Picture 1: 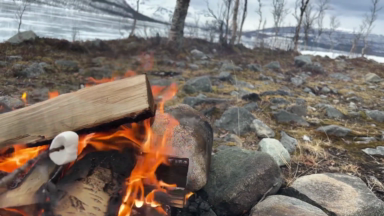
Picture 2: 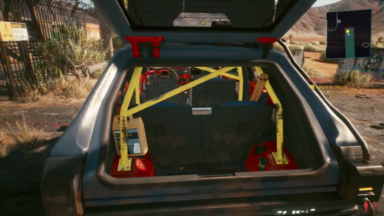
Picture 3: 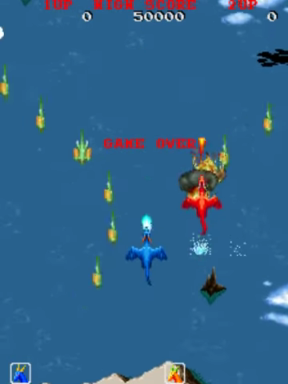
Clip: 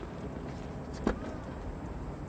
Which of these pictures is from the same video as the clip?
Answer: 2